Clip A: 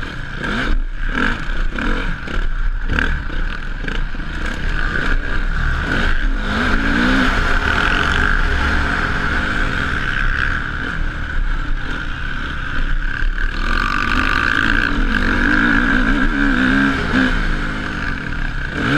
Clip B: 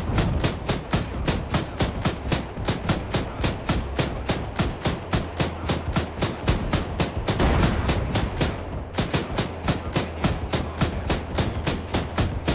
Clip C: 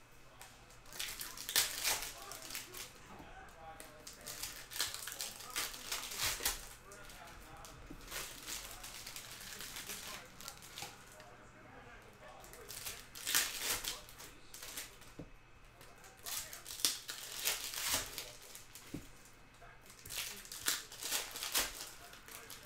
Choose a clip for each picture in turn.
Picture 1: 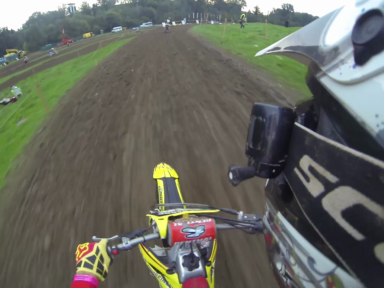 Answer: A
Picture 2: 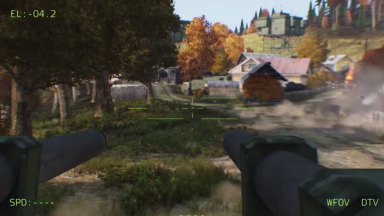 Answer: B